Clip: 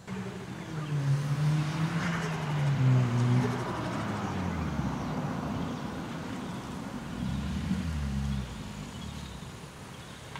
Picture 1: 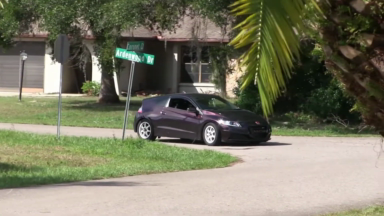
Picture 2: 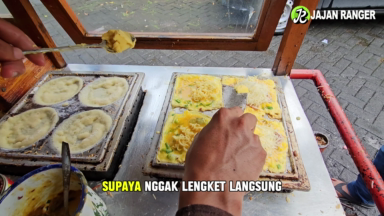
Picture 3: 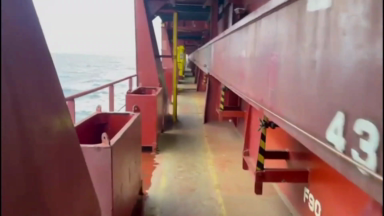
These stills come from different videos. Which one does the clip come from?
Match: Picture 1